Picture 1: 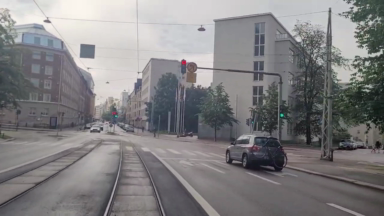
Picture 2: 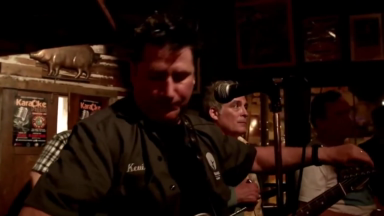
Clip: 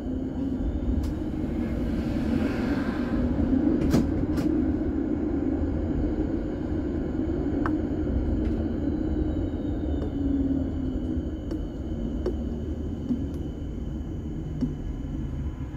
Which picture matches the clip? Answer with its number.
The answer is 1